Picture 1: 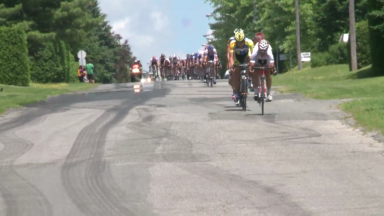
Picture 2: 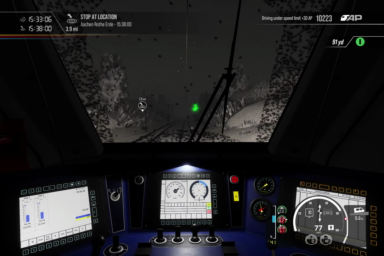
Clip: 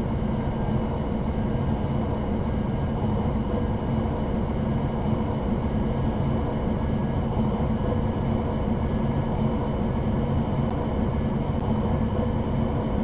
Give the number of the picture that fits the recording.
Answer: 2